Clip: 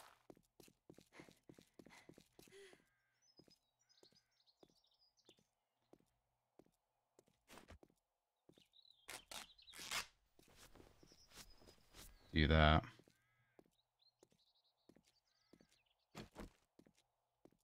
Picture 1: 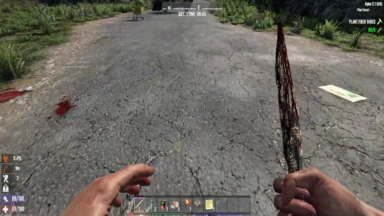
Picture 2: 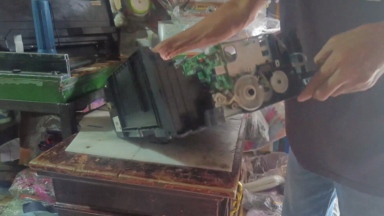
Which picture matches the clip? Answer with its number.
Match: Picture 1